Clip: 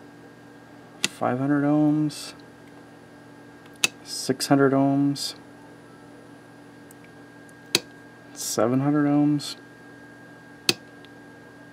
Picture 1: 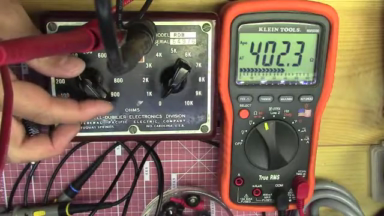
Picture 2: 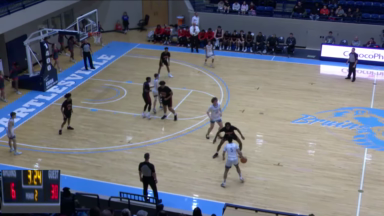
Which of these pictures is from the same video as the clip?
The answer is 1